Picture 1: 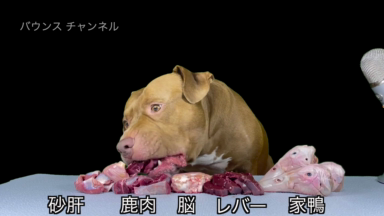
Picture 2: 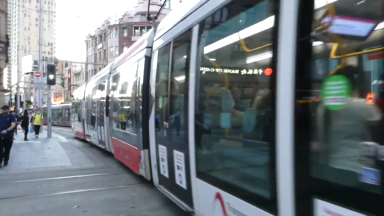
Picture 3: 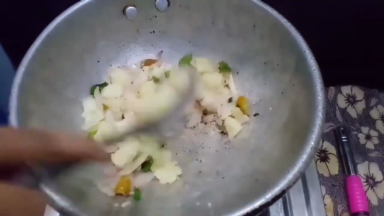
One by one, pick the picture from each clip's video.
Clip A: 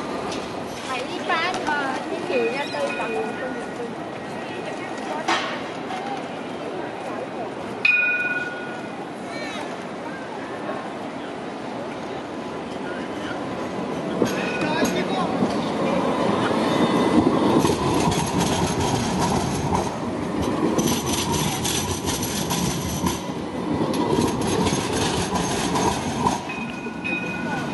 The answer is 2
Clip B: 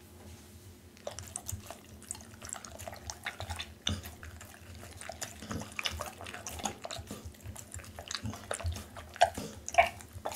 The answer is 1